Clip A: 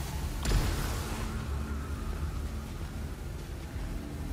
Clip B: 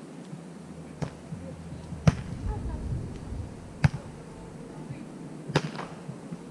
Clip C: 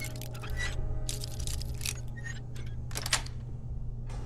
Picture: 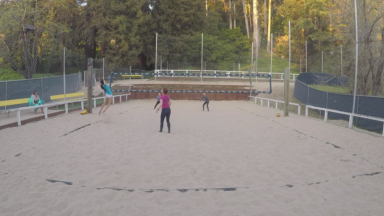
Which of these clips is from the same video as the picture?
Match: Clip B